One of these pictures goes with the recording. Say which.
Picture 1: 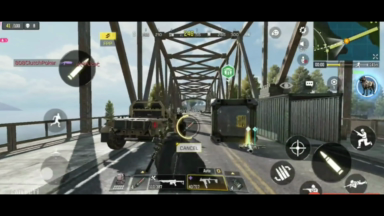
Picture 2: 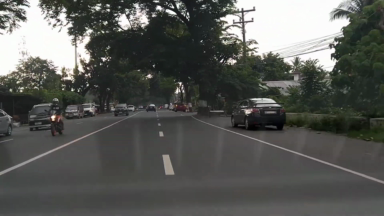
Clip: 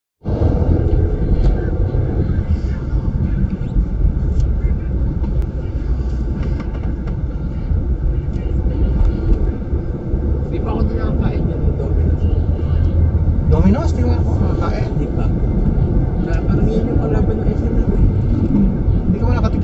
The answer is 2